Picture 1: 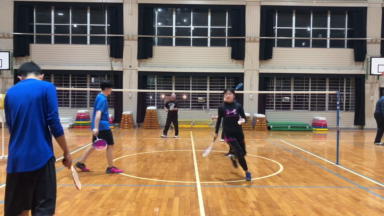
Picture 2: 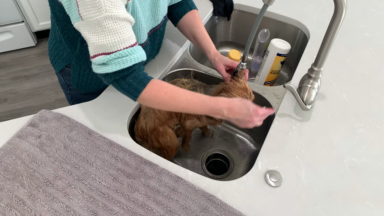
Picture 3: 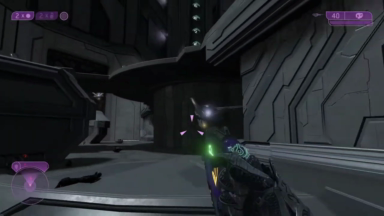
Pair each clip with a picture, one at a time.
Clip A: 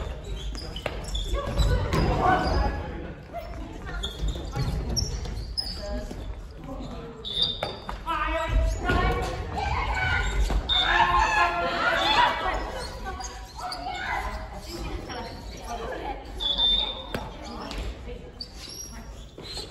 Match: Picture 1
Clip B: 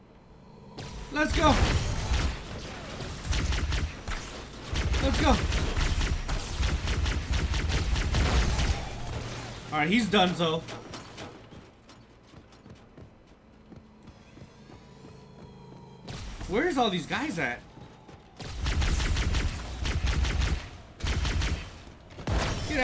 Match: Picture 3